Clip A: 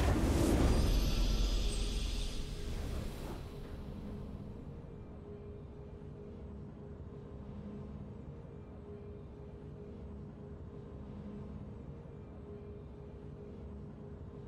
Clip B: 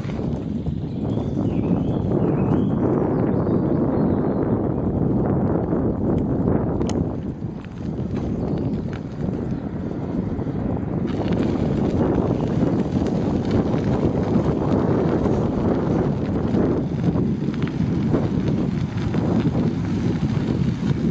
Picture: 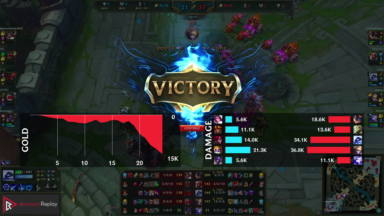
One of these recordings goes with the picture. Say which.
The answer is A